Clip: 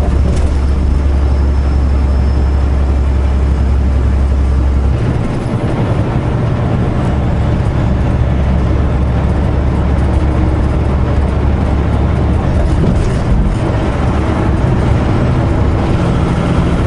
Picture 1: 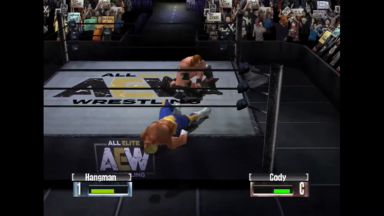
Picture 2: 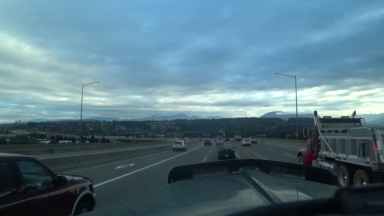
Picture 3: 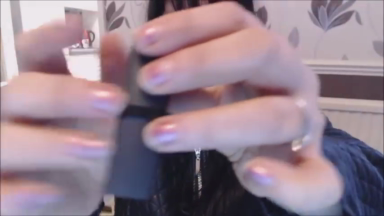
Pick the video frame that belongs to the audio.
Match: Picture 2